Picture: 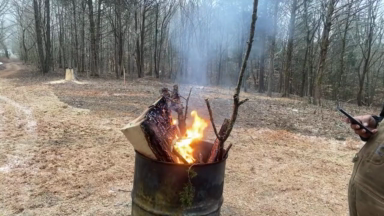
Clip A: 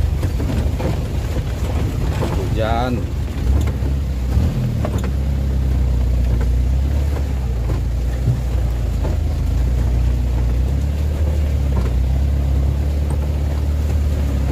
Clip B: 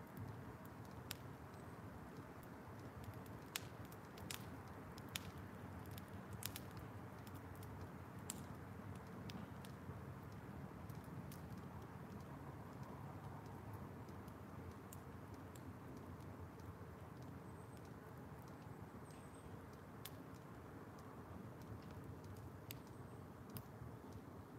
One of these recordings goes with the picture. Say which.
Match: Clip B